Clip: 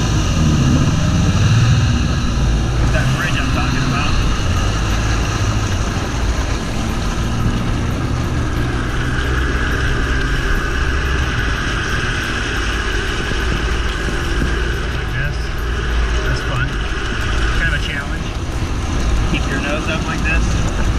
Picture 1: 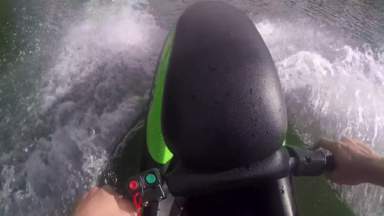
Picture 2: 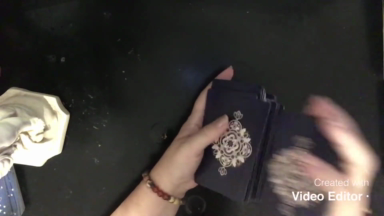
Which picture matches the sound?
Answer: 1